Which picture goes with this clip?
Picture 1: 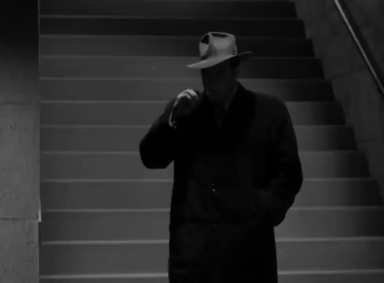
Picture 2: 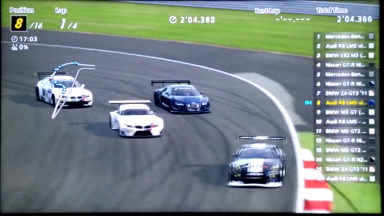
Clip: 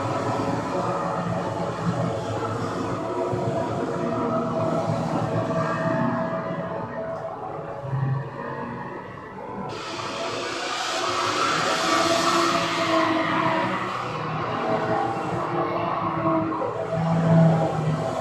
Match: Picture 2